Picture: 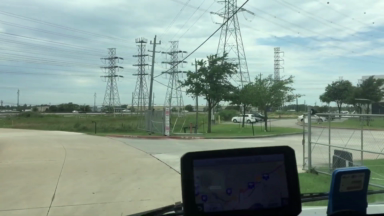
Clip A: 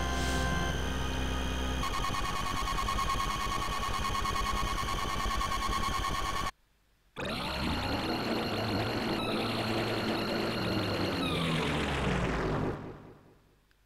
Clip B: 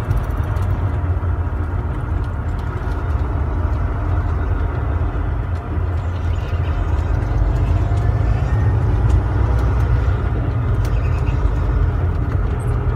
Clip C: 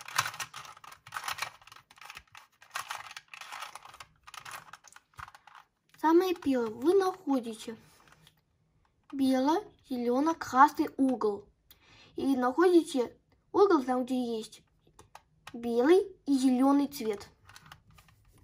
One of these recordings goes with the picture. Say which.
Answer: B